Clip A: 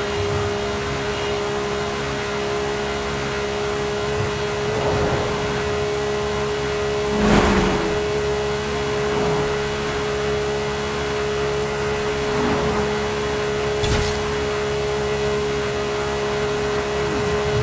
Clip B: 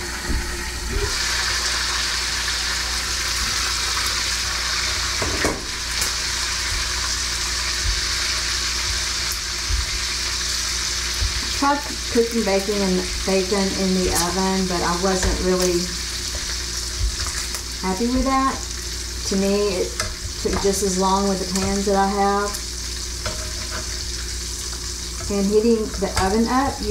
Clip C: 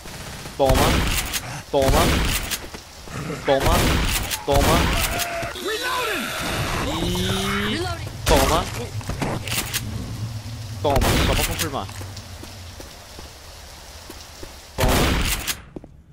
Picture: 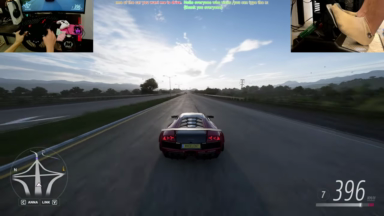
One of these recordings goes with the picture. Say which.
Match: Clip A